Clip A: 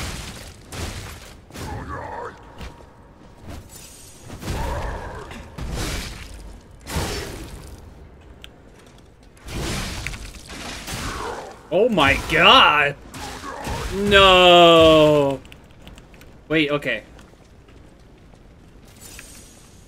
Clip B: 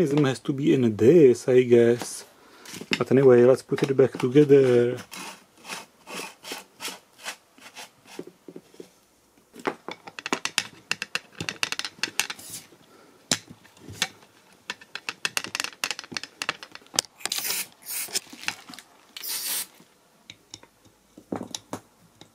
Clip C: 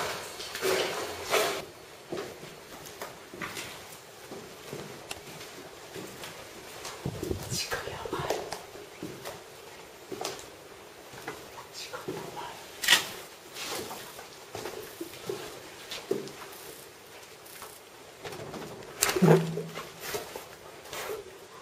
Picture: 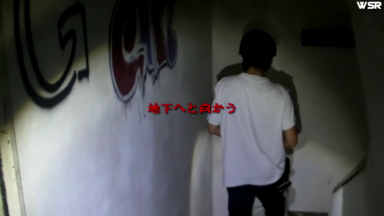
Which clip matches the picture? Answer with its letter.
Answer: C